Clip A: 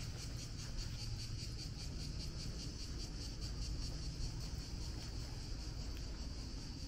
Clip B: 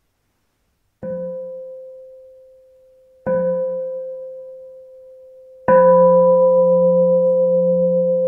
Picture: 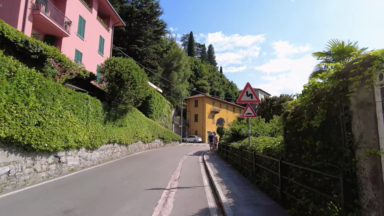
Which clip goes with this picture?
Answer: A